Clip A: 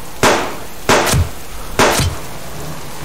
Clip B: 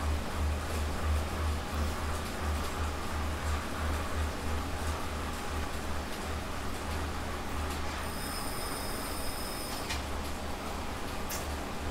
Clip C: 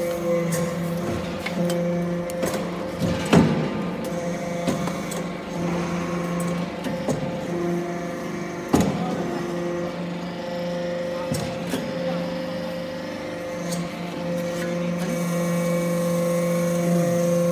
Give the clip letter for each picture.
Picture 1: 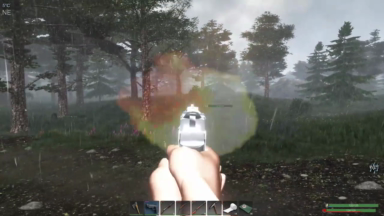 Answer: A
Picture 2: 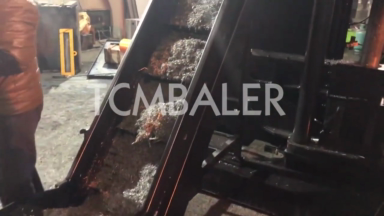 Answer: C